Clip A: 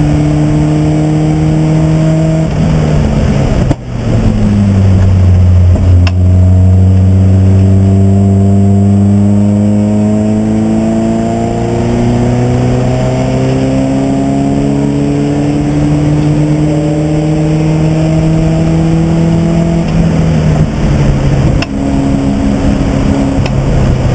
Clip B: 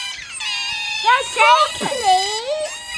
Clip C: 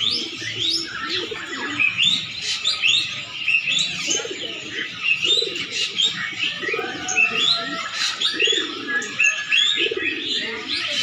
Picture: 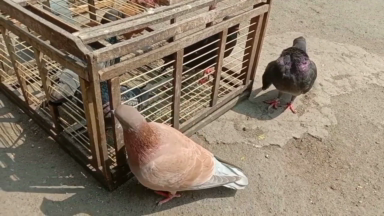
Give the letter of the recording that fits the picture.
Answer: C